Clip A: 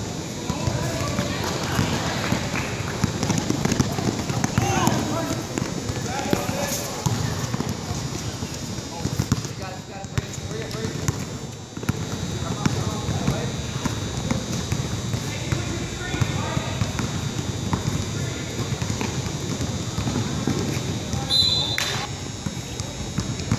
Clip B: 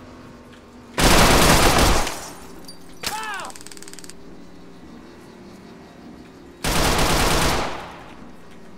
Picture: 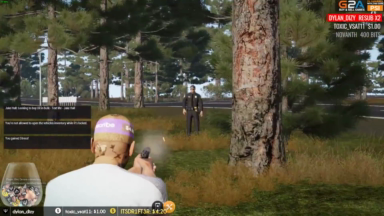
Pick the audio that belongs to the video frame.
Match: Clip B